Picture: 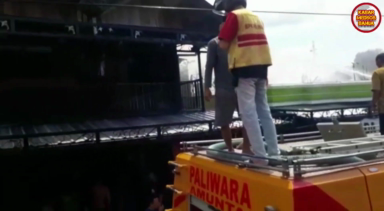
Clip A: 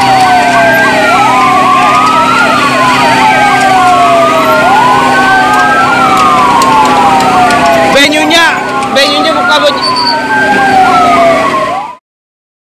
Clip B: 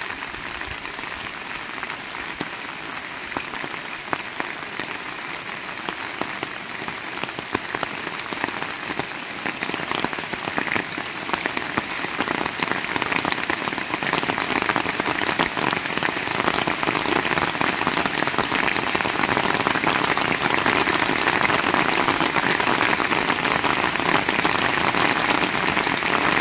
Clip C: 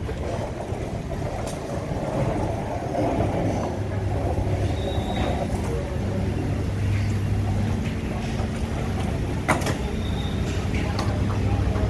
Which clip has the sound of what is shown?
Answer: A